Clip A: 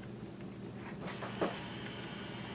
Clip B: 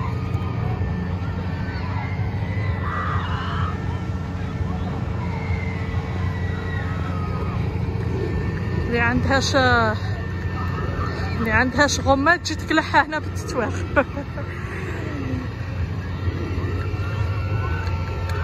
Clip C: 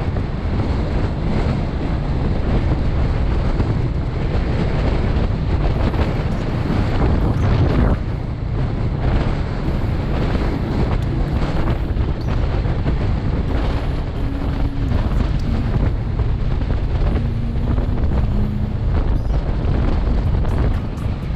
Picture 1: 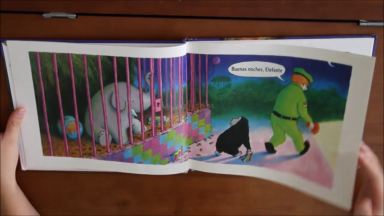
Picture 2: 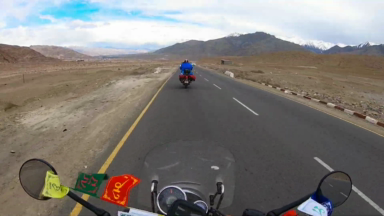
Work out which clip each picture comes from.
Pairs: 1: A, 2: C